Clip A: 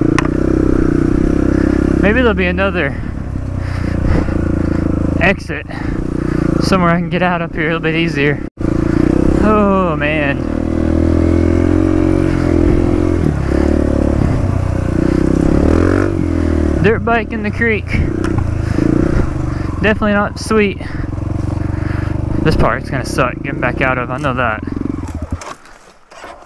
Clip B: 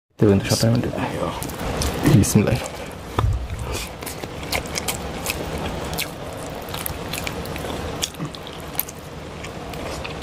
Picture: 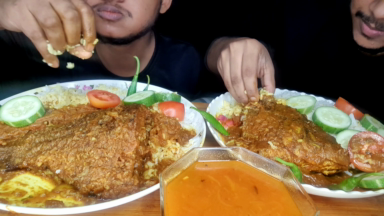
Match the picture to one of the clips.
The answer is B